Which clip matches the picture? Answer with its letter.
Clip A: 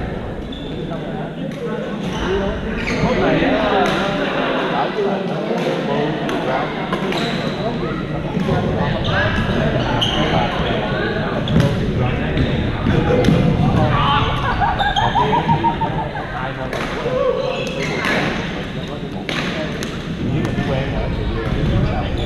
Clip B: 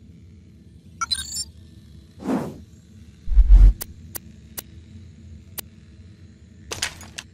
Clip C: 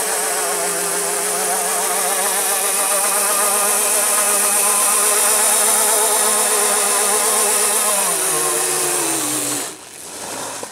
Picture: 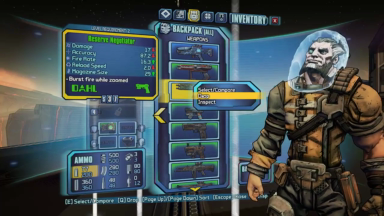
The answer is B